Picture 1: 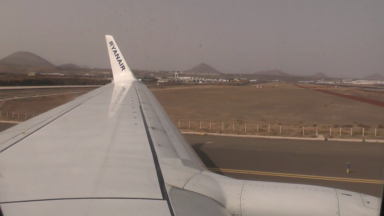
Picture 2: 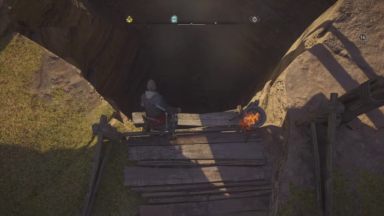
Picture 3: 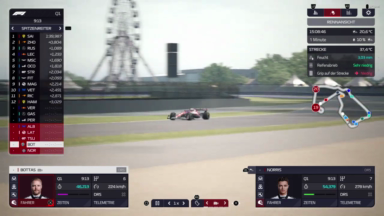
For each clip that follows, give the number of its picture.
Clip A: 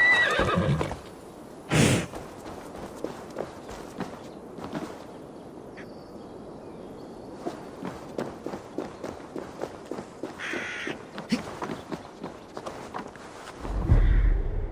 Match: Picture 2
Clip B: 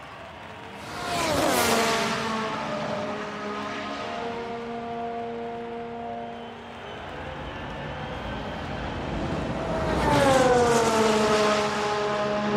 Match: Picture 3